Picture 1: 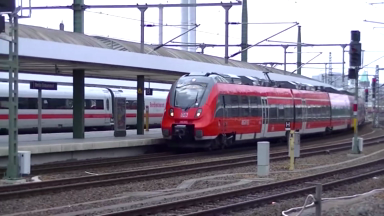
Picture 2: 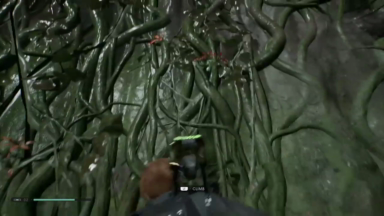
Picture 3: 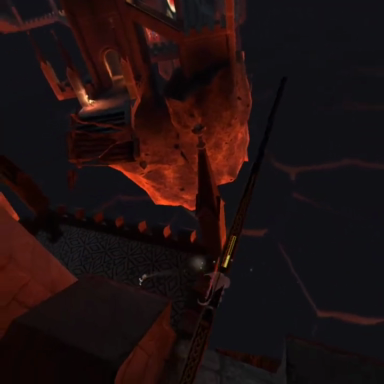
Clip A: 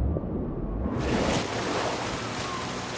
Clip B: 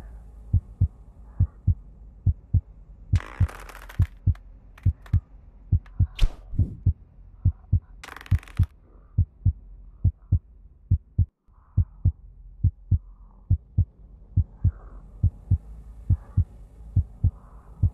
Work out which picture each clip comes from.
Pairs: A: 2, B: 3